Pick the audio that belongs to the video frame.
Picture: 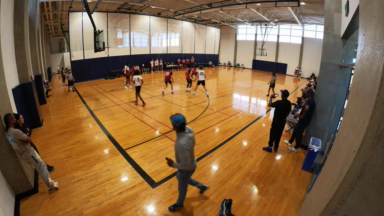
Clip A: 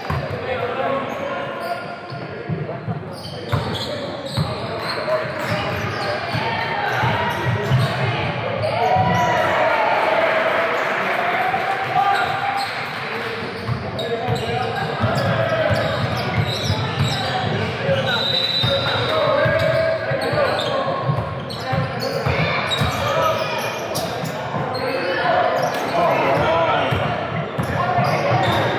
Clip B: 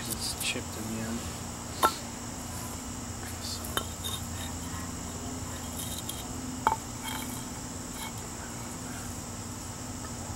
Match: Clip A